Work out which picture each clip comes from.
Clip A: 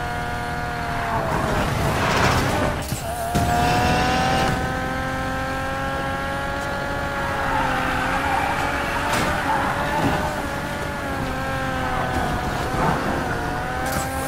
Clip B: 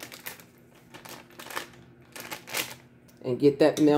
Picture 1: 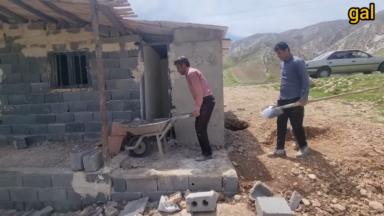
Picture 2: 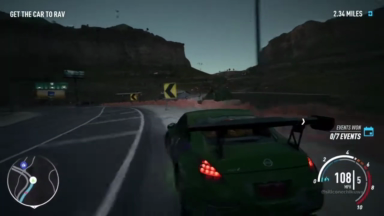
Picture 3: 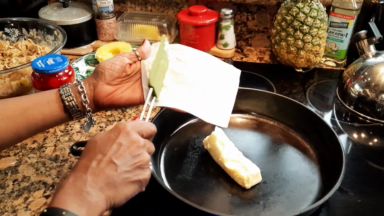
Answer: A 2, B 3